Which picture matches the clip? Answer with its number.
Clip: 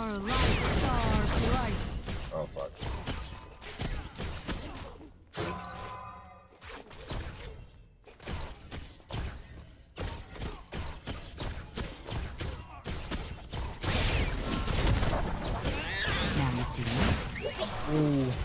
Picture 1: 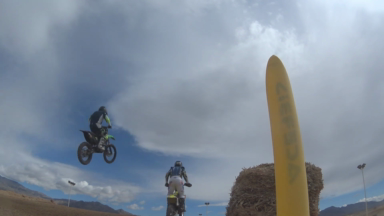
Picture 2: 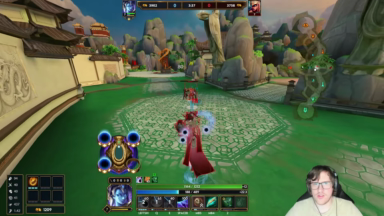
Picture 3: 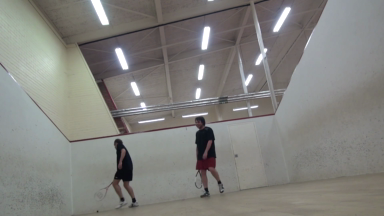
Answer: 2